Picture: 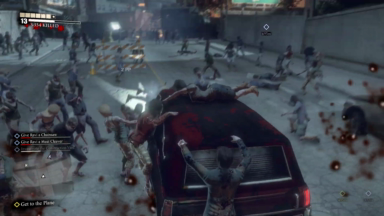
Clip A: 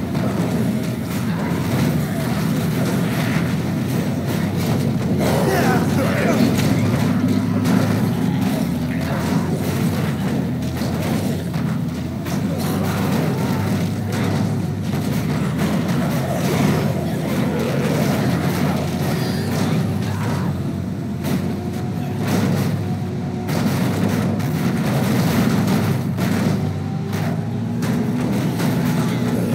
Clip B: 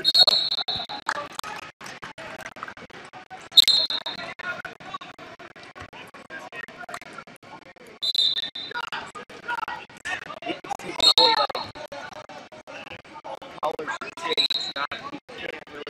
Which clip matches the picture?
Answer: A